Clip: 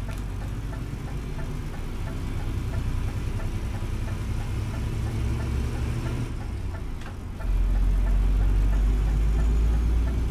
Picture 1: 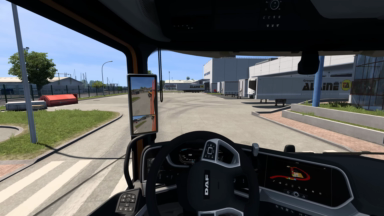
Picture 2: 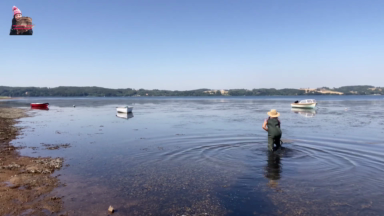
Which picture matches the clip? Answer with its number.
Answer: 1